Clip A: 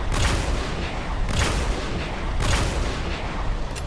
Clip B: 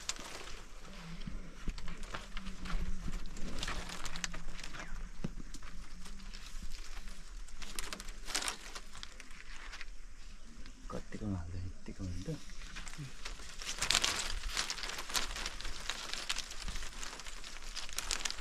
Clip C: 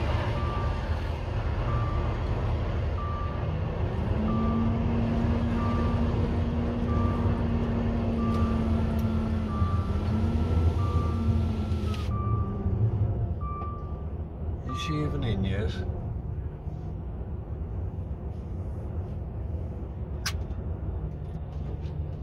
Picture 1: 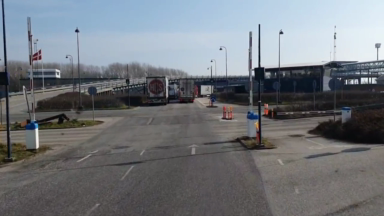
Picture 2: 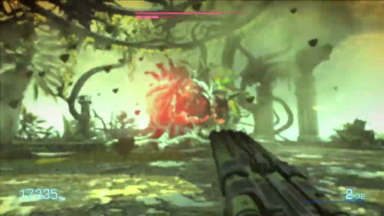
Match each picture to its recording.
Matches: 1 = C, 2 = A